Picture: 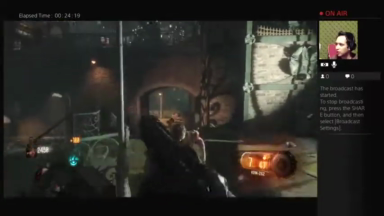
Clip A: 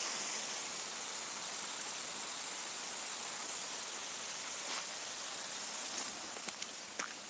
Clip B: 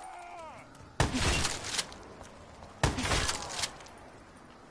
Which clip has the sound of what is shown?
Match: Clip B